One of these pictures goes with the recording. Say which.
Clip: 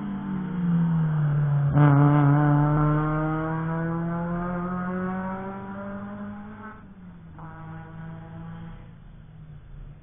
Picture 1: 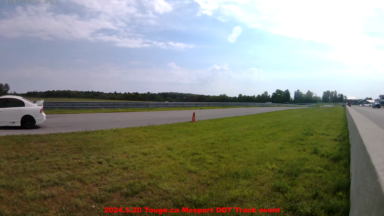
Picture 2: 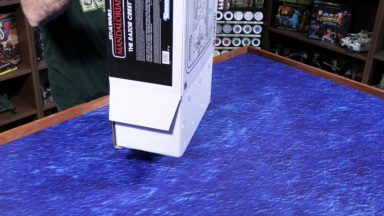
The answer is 1